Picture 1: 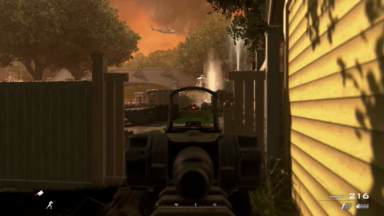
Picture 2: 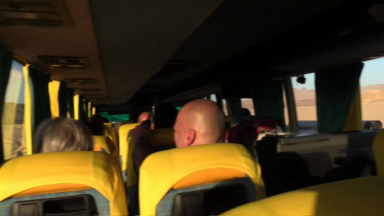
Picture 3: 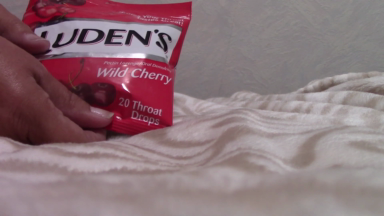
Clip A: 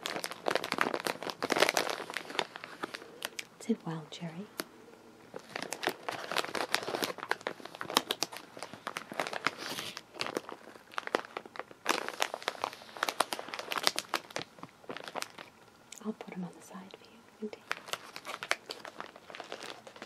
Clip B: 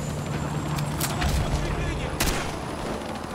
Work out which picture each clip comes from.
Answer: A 3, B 1